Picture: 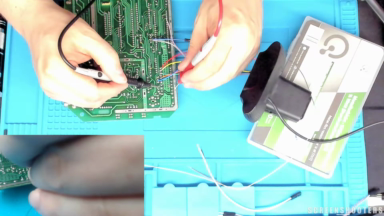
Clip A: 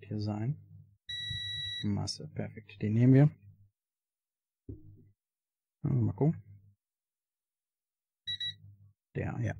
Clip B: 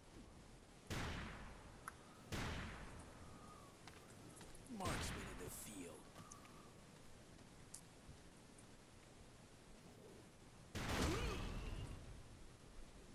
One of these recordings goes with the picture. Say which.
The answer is A